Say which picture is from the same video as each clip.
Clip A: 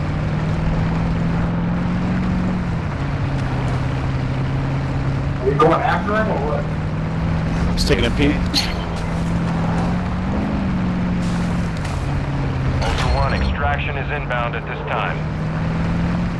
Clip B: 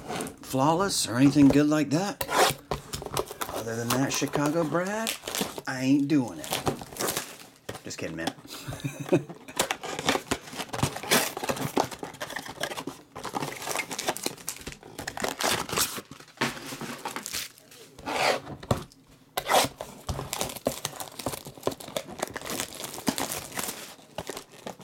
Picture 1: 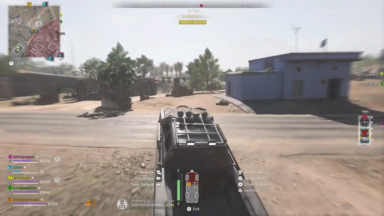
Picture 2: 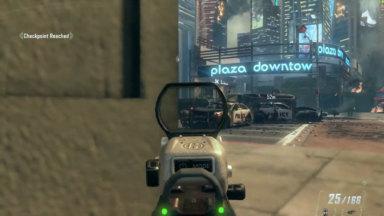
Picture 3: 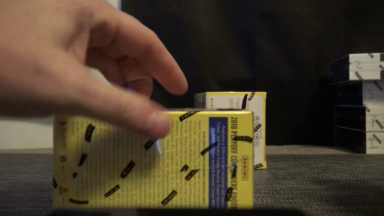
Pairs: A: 1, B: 3